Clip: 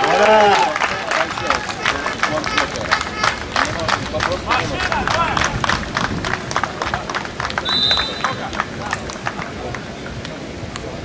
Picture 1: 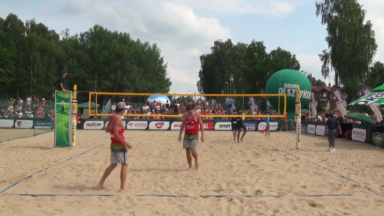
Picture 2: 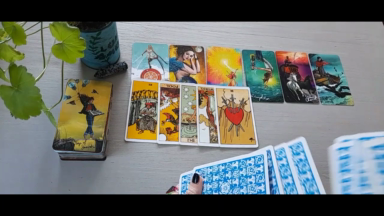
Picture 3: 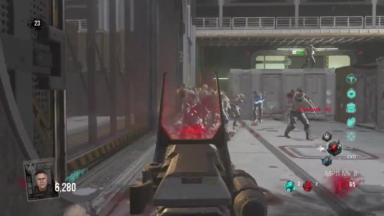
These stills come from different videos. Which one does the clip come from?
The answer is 1